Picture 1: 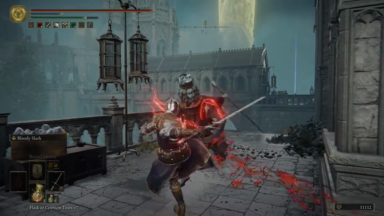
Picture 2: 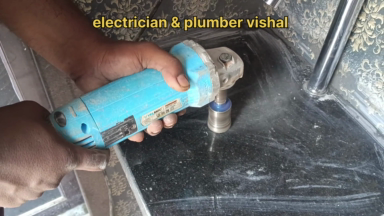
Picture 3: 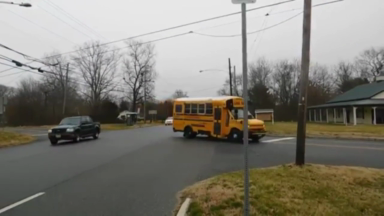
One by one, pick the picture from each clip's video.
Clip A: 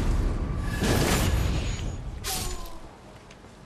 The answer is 1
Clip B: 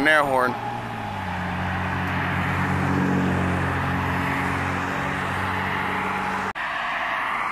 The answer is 3